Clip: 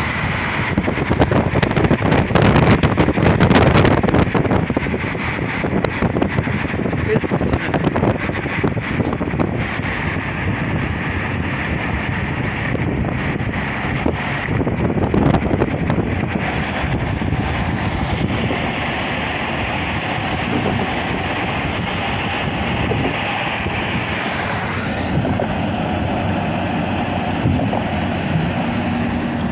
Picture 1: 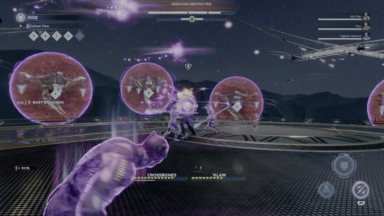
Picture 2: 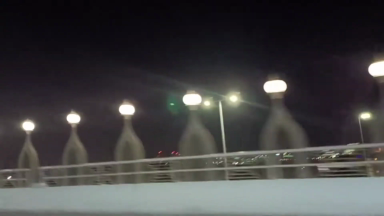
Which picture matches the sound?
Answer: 2